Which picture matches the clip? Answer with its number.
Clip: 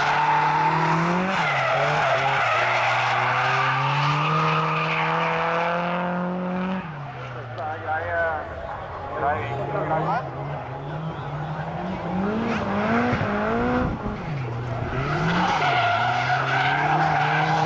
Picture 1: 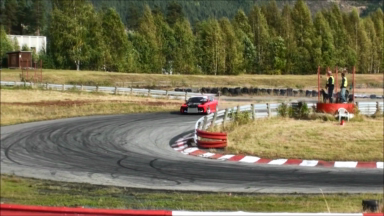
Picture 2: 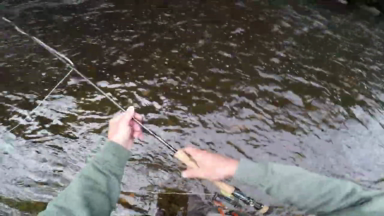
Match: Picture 1